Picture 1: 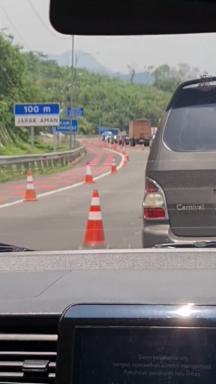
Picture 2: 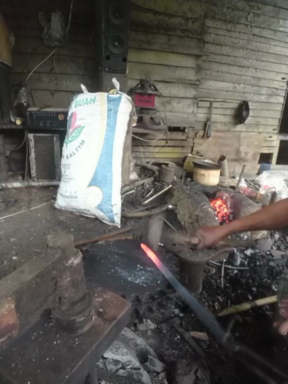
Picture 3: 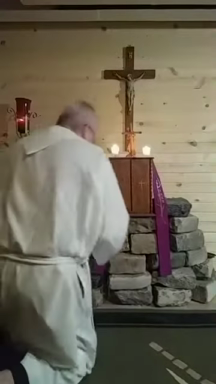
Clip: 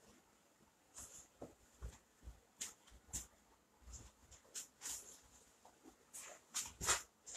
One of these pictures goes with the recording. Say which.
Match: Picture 3